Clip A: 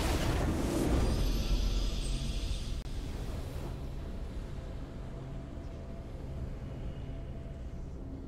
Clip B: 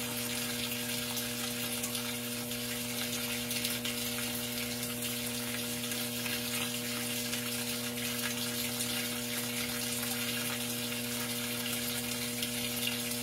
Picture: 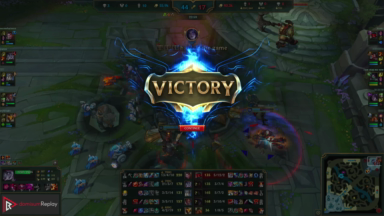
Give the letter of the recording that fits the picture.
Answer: A